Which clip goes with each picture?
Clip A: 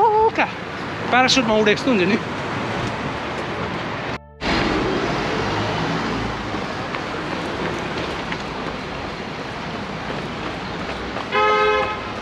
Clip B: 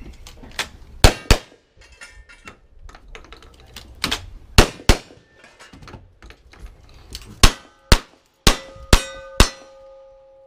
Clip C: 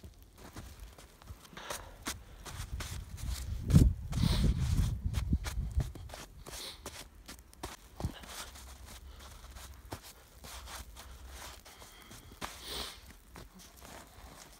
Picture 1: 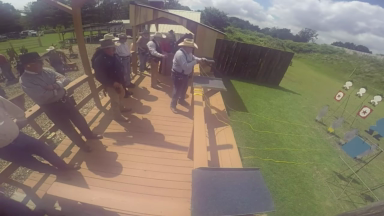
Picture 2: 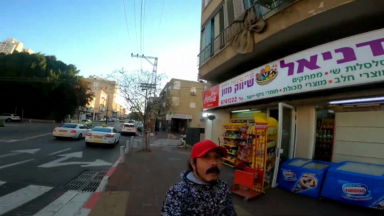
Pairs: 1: B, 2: A